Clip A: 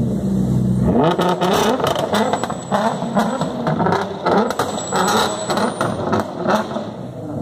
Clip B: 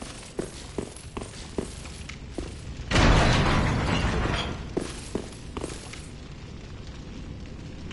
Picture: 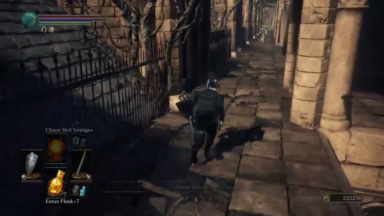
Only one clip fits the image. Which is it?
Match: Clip B